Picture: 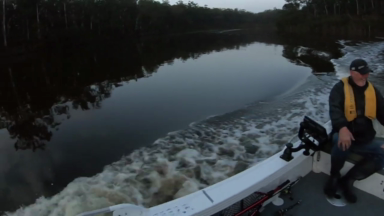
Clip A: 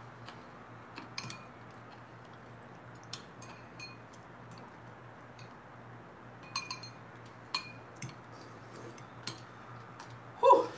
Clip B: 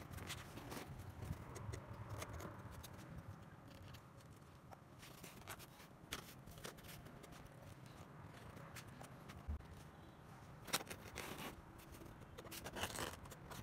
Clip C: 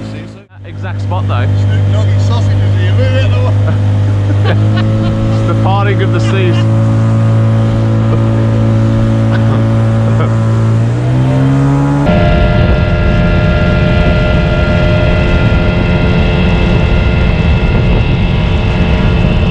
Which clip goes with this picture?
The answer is C